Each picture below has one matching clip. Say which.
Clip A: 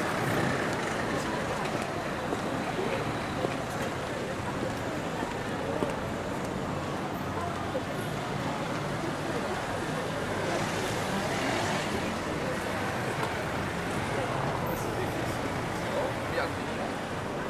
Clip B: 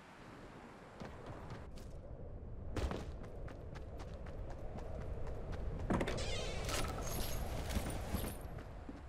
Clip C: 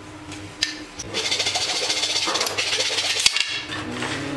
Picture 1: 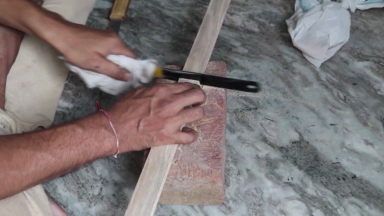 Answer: C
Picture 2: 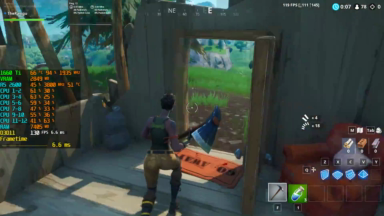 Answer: B